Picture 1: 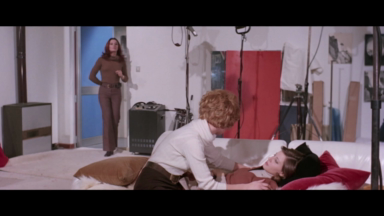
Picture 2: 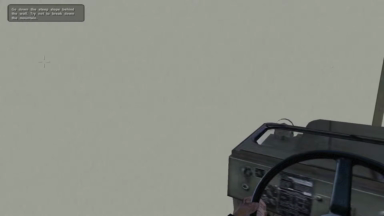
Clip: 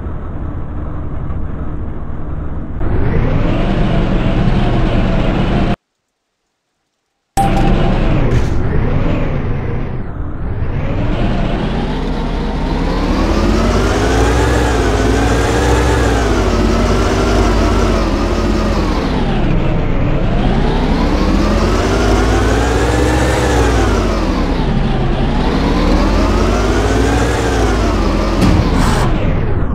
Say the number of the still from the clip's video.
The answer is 2